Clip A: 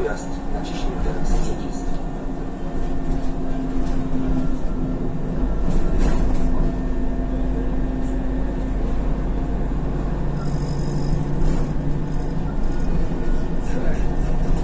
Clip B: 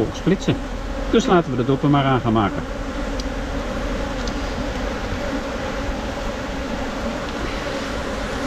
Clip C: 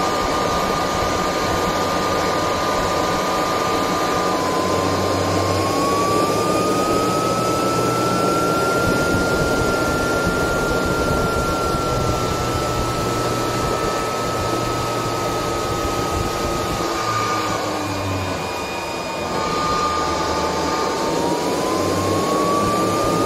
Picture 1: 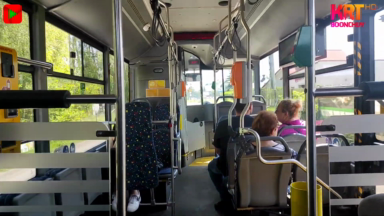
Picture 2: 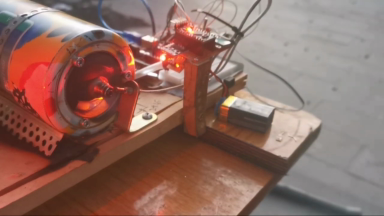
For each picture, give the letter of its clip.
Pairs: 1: A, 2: C